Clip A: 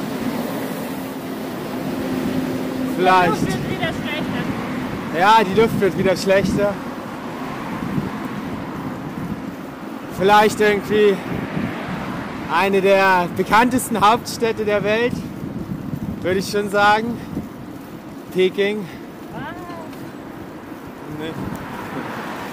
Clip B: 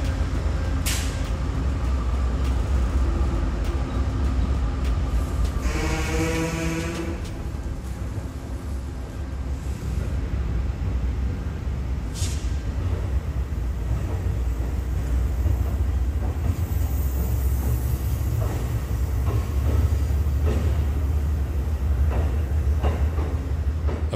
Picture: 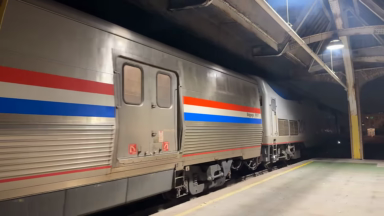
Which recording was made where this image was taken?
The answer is B